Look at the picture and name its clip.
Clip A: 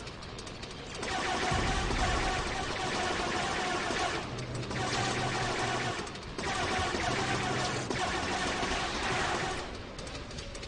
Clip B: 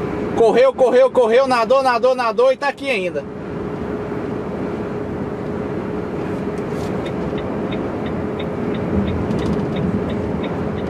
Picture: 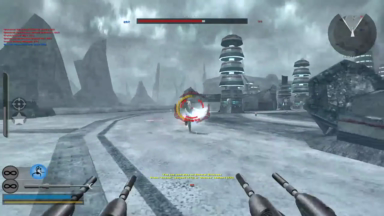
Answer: A